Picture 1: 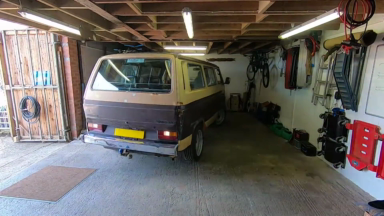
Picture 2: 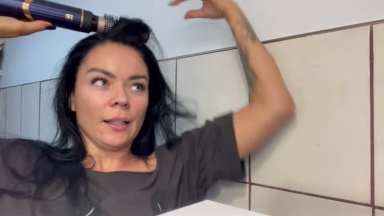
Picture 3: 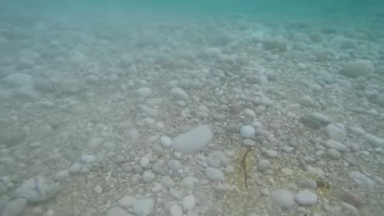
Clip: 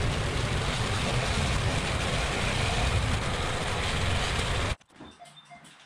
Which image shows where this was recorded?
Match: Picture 1